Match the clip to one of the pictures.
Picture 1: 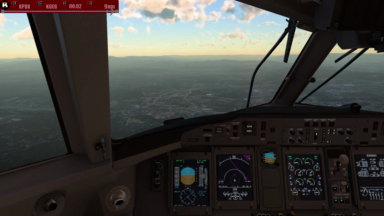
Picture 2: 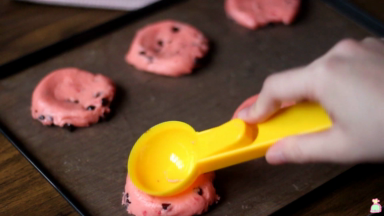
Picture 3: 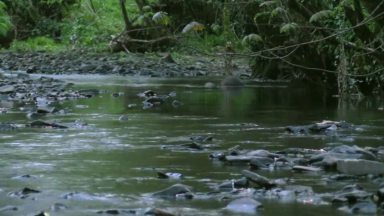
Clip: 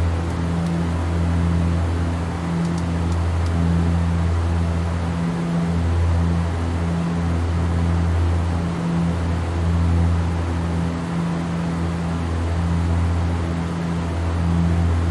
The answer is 1